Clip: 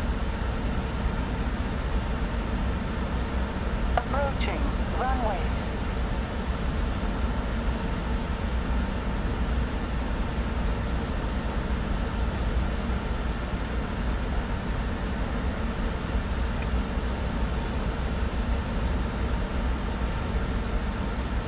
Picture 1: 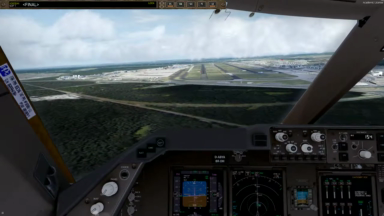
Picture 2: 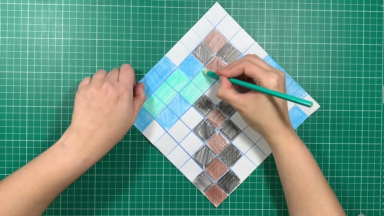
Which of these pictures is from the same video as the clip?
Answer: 1